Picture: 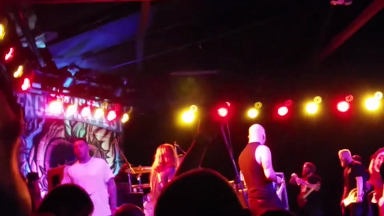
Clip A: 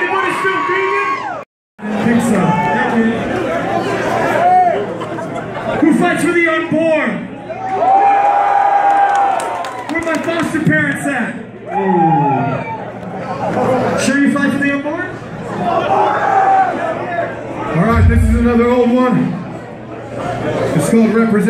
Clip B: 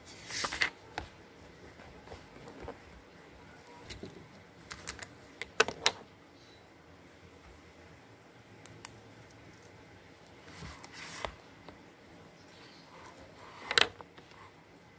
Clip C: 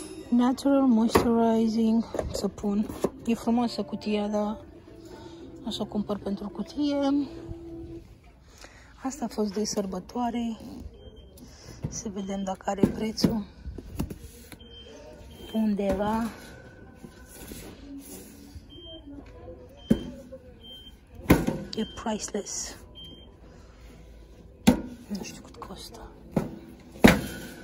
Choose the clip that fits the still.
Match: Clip A